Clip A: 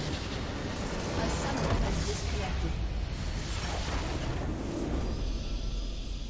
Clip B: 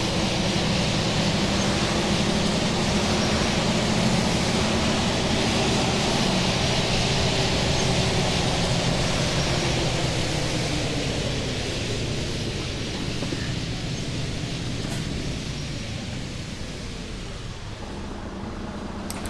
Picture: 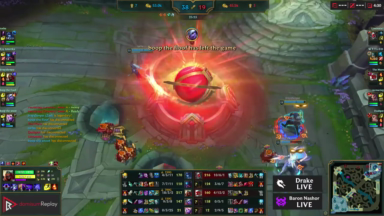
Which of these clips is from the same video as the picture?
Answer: A